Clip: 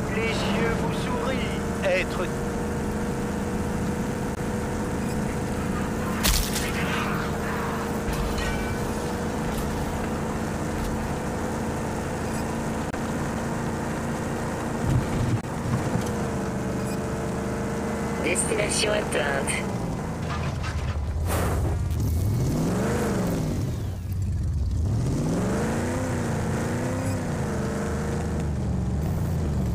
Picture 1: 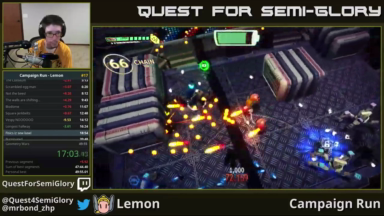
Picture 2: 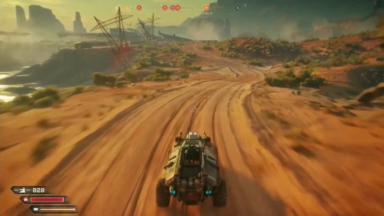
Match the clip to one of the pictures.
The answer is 2